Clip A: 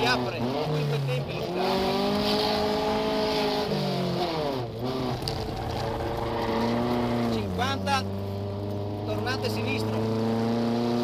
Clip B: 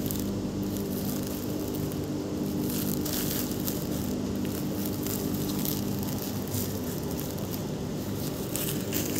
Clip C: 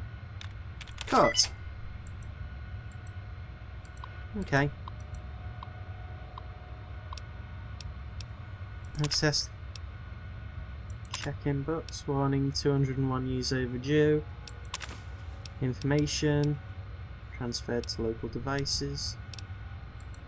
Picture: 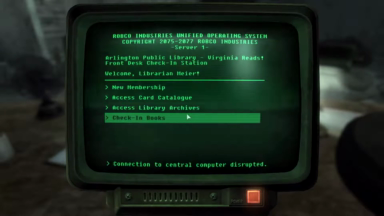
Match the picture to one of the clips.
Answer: C